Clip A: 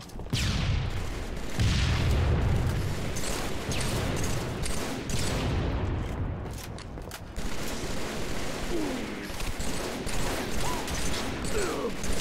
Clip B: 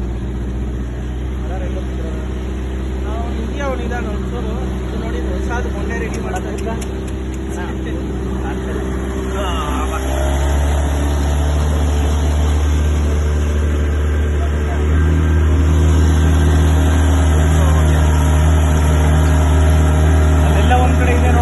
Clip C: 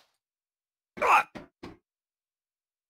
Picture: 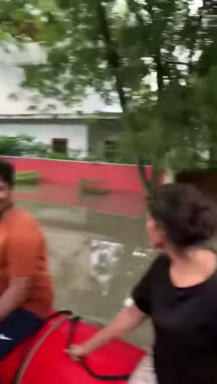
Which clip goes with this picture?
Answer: B